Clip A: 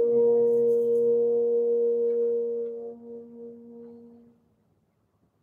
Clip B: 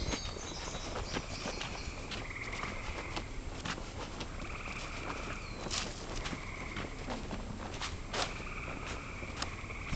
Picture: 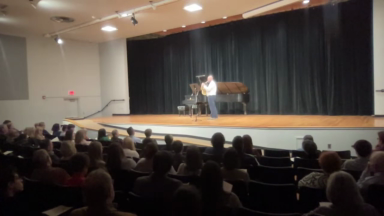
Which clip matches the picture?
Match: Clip A